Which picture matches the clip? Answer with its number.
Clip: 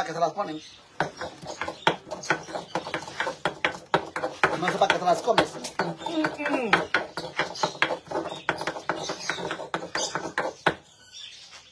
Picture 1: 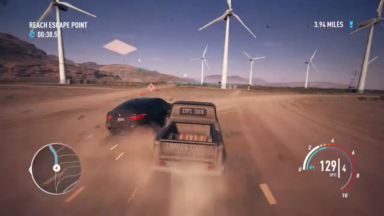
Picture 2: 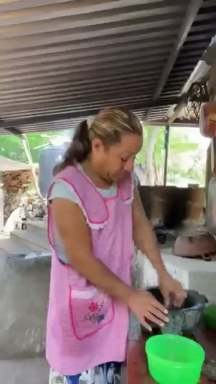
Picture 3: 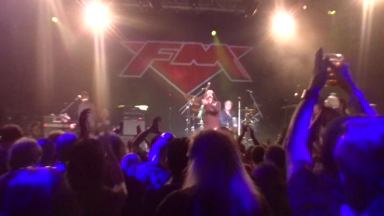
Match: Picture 2